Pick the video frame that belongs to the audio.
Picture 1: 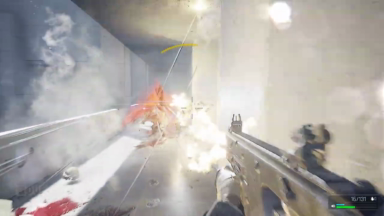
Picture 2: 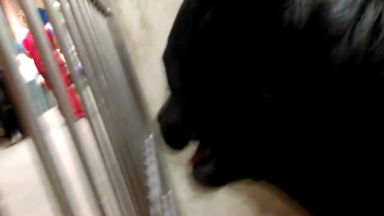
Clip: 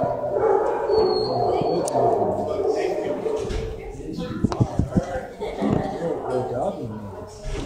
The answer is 2